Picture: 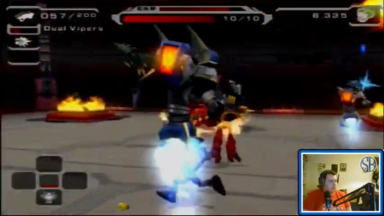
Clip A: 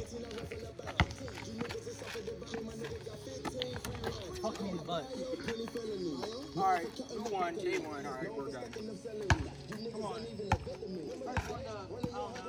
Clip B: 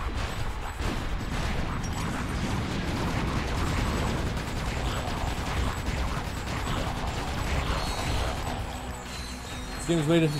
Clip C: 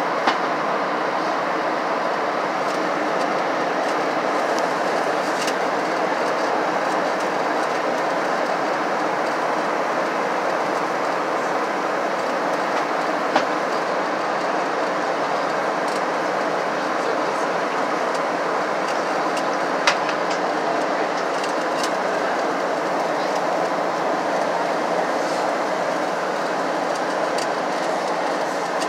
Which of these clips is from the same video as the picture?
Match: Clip B